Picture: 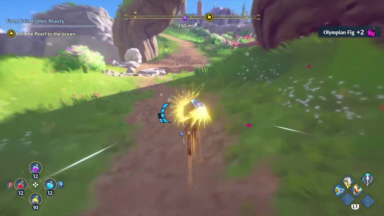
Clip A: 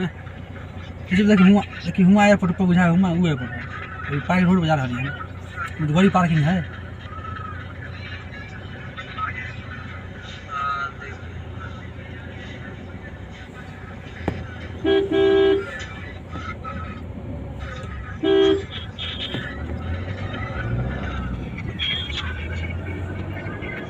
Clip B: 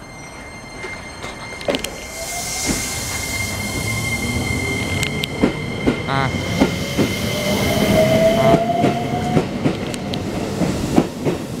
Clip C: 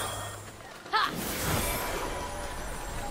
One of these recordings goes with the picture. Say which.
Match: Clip C